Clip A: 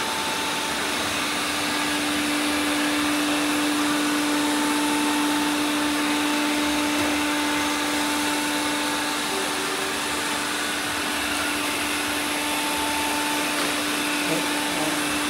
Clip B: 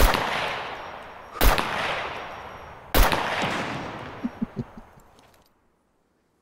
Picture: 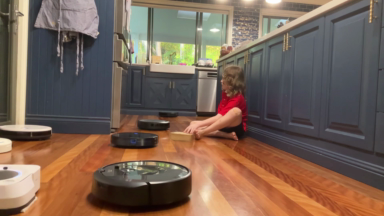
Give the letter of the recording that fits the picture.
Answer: A